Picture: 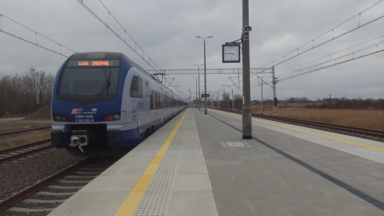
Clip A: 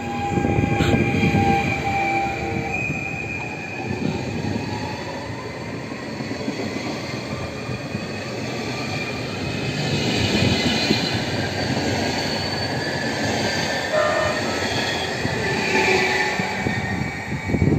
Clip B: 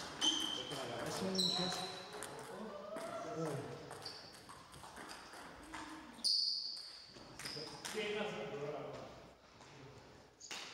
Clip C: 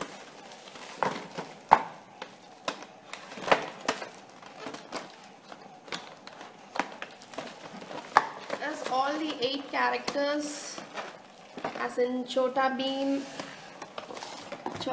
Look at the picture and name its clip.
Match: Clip A